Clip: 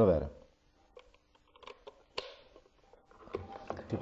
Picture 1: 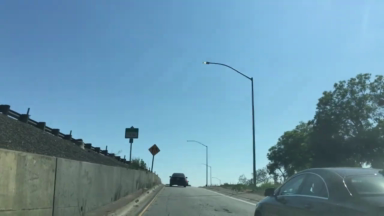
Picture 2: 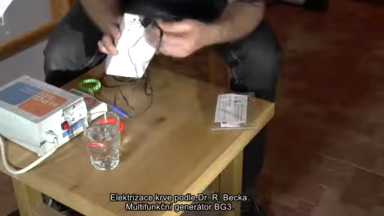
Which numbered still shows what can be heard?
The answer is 2